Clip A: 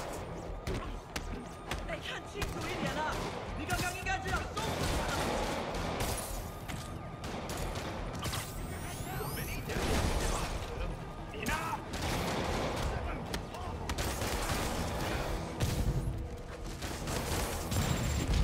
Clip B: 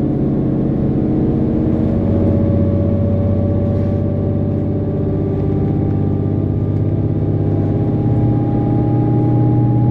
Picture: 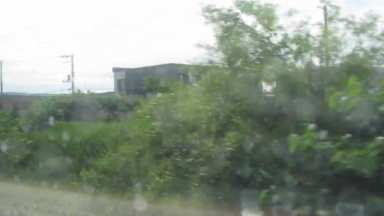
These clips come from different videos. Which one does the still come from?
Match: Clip B